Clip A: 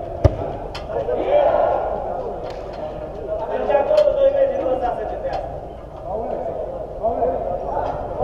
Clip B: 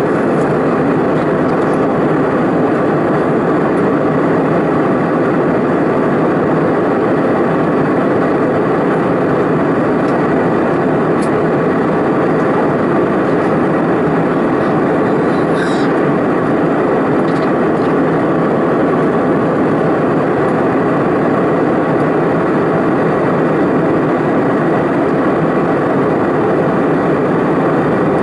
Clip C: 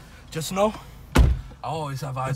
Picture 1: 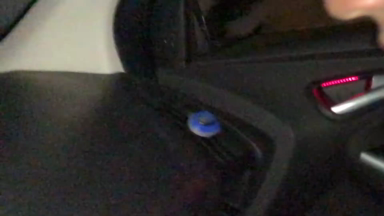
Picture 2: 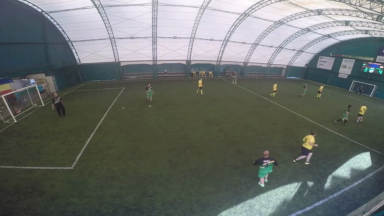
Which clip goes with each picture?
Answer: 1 C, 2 A